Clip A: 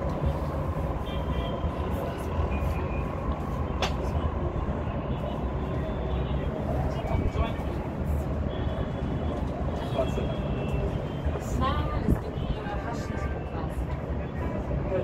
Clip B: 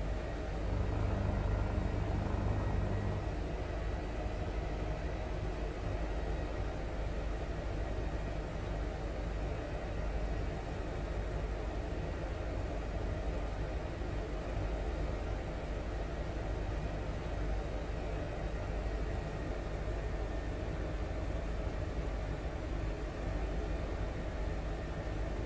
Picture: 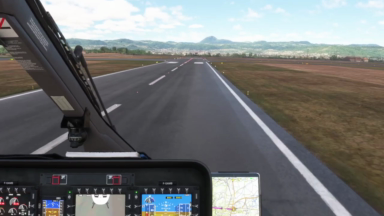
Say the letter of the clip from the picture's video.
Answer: B